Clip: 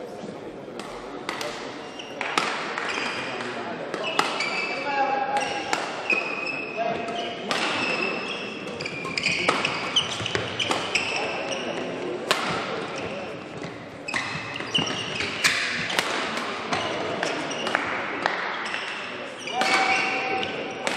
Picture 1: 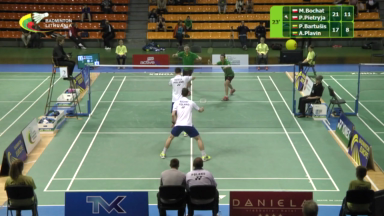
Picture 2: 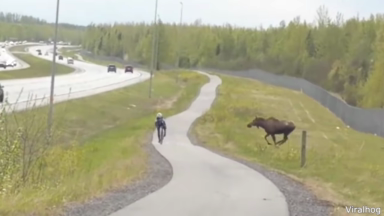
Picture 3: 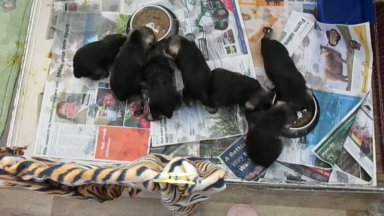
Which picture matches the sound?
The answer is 1